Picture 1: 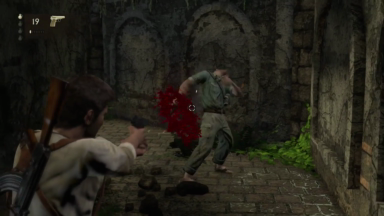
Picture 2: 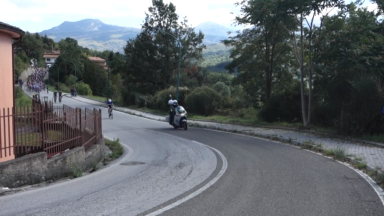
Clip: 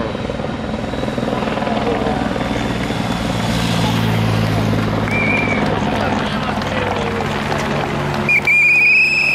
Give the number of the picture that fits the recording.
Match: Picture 2